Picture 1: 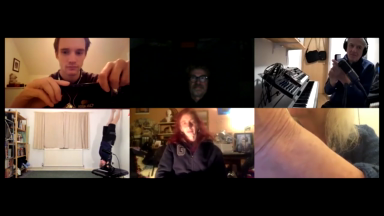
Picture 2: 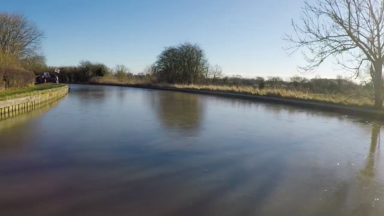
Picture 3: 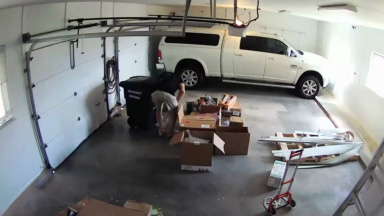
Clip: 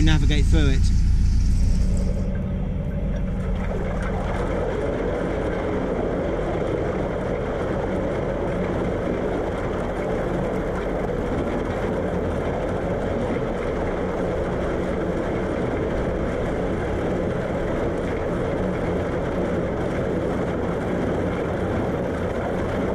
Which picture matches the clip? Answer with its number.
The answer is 2